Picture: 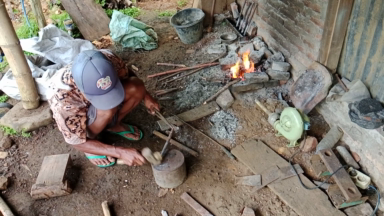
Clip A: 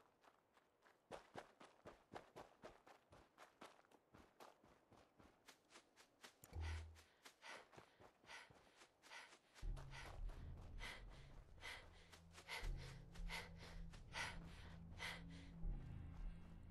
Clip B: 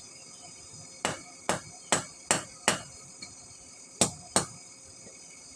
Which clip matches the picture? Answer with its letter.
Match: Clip B